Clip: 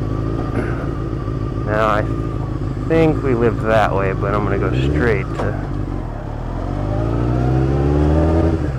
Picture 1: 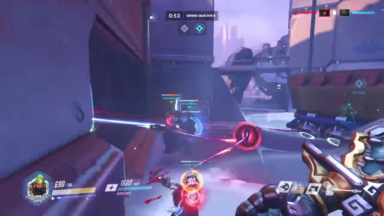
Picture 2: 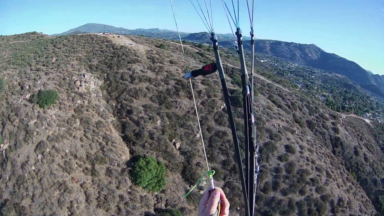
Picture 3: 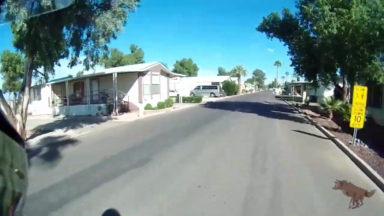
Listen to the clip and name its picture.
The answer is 3